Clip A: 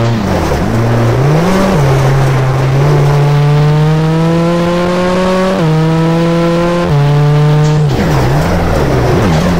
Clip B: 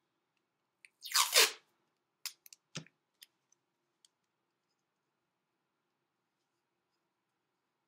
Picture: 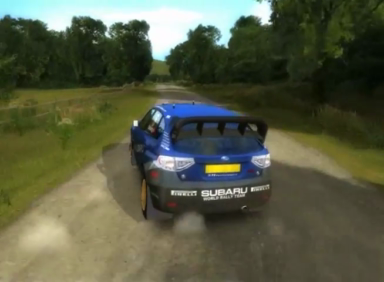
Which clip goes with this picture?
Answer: A